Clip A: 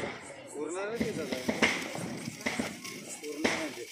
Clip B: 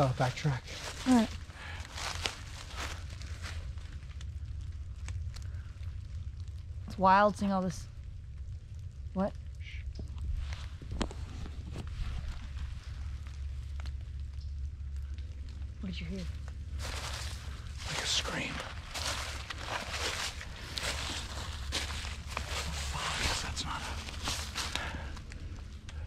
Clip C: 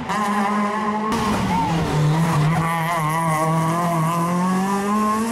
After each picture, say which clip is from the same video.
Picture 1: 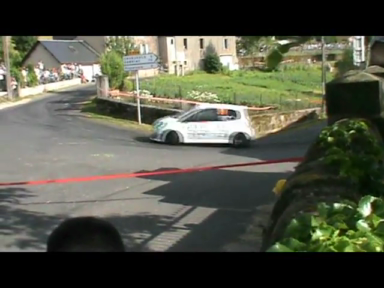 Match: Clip C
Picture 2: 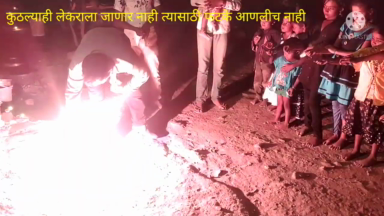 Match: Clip A